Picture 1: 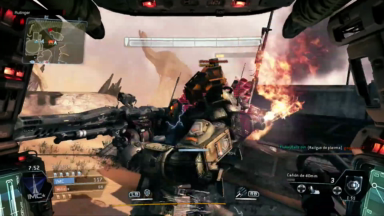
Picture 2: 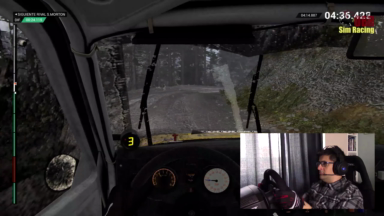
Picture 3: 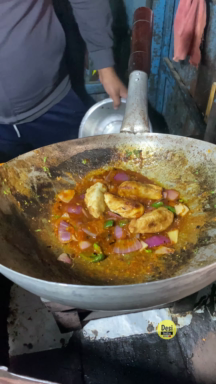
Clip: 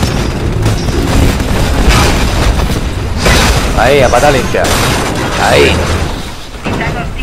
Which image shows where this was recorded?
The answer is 1